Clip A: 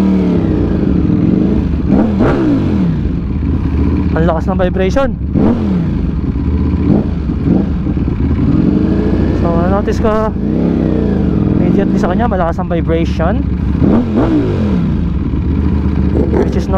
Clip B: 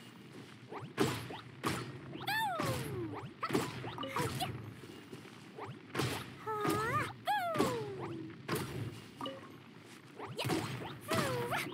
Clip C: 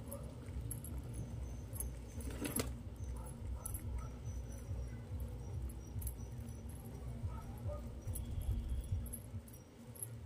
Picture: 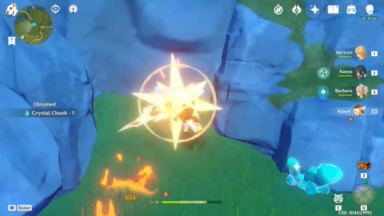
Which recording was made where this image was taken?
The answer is B